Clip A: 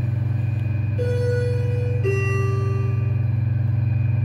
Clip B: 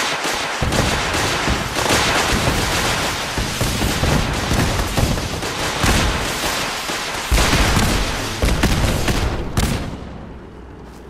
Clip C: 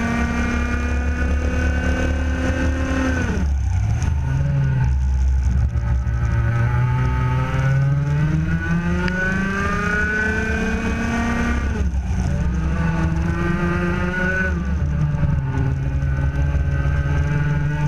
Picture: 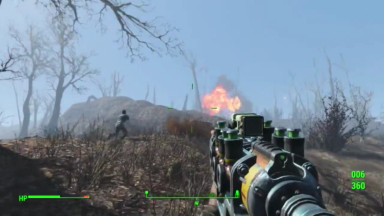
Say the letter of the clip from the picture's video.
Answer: B